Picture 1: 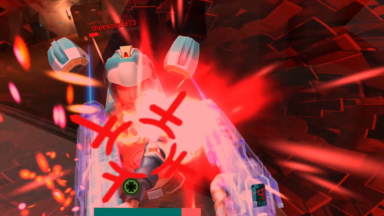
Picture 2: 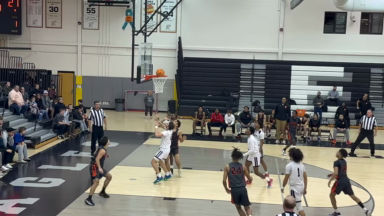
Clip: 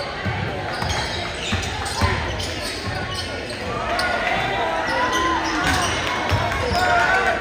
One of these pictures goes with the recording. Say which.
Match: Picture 2